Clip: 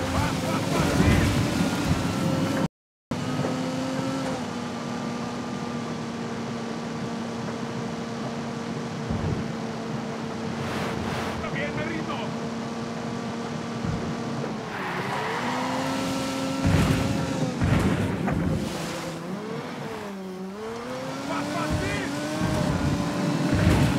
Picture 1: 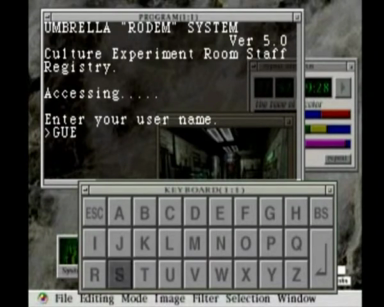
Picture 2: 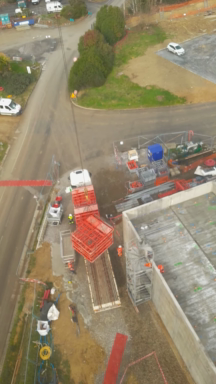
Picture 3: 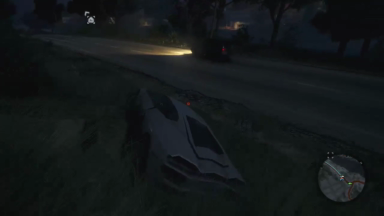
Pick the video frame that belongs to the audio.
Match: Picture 3